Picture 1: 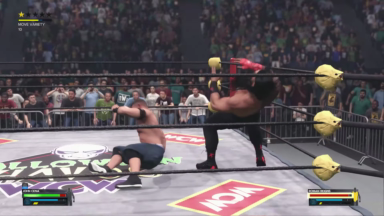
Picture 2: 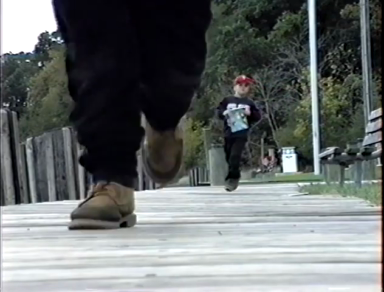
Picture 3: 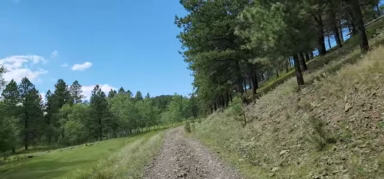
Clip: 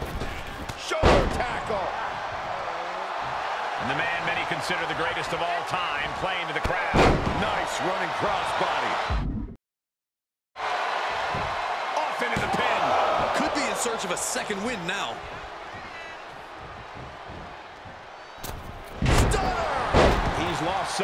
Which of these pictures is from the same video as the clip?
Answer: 1